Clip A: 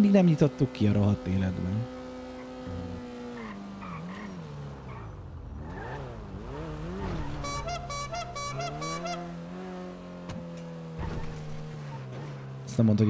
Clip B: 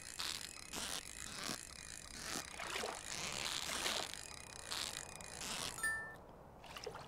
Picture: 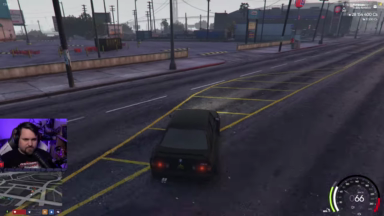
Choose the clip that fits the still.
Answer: A